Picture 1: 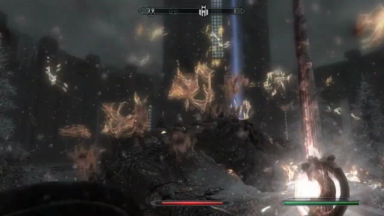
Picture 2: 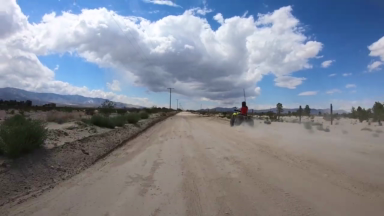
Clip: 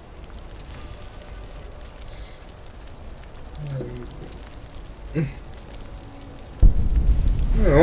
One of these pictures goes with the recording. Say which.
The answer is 1